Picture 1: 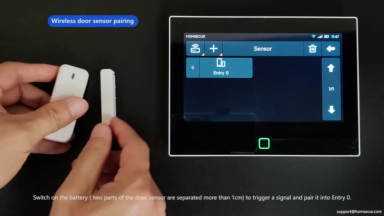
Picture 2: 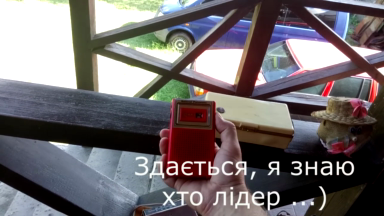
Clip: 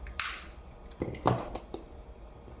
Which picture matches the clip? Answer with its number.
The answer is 1